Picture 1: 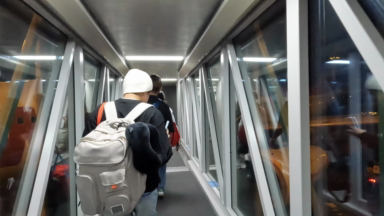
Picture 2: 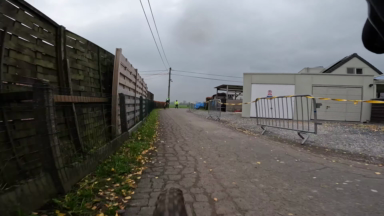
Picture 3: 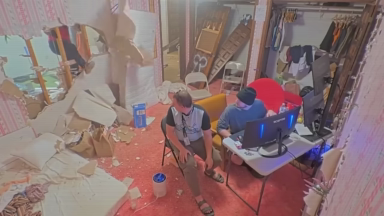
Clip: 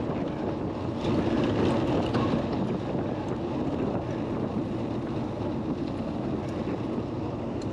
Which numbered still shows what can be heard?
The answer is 2